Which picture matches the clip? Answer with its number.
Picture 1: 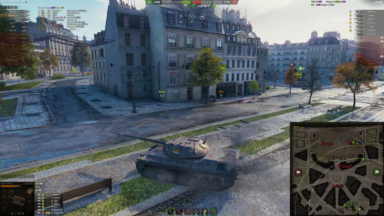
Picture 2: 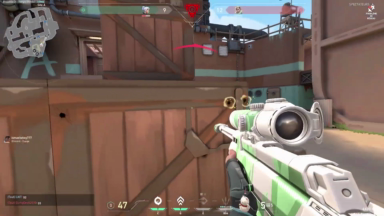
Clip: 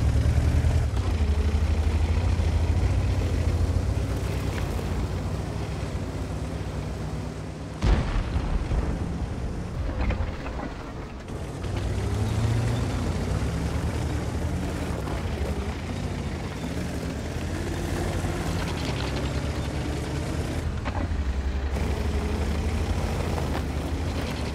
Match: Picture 1